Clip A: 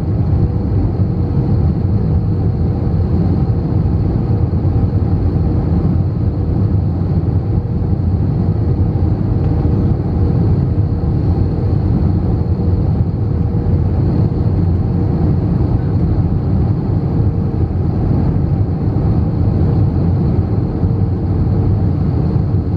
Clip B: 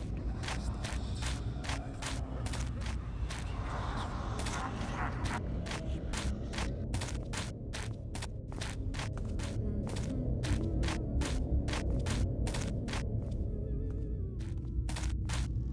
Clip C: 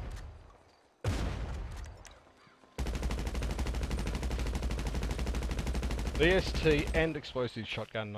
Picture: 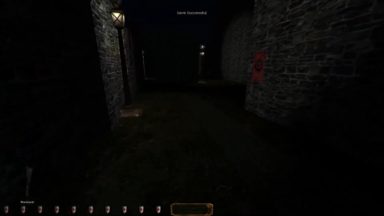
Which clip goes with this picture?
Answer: B